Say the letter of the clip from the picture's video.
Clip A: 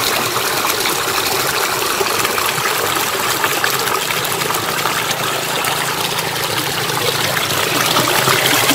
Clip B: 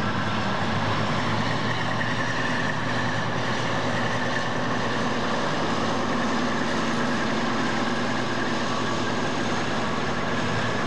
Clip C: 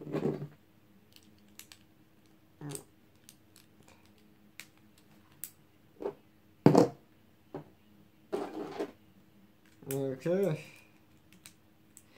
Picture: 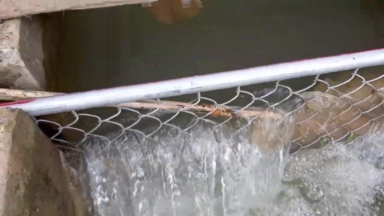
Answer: A